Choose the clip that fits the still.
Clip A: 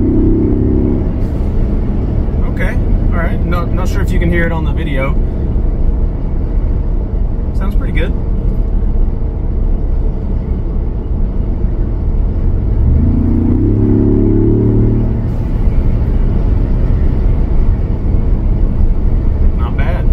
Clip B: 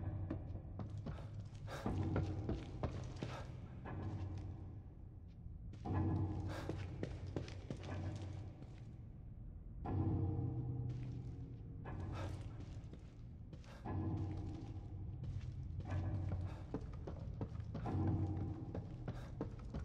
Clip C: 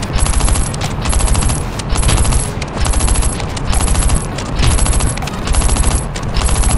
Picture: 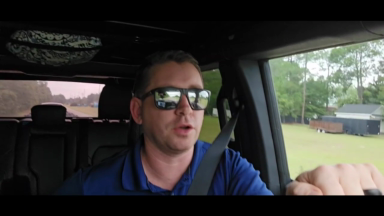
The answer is A